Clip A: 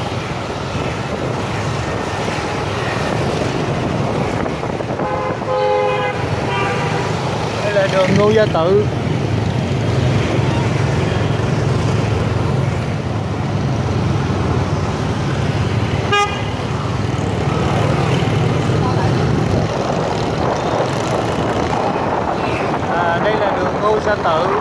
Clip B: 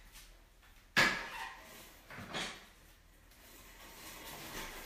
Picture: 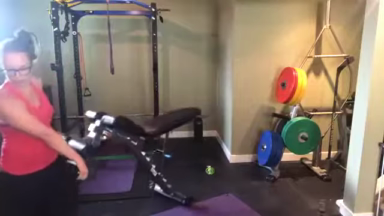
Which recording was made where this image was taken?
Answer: B